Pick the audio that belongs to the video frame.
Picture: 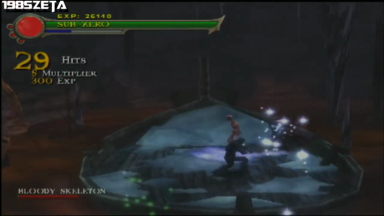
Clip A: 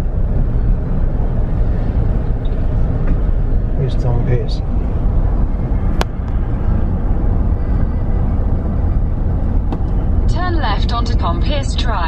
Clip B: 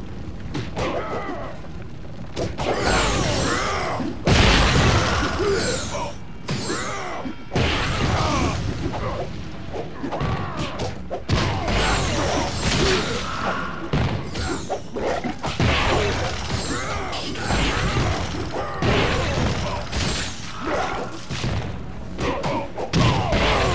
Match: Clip B